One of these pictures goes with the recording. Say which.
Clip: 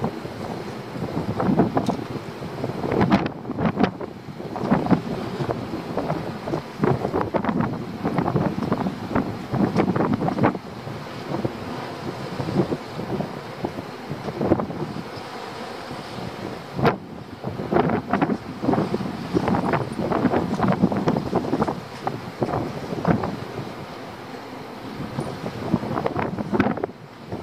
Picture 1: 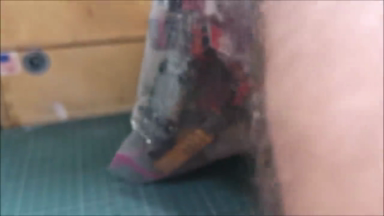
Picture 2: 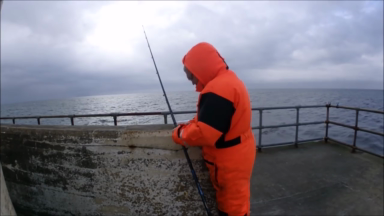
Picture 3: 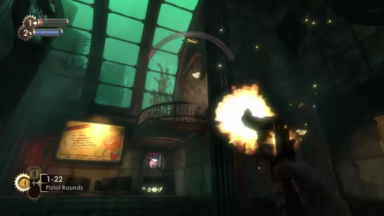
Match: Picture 2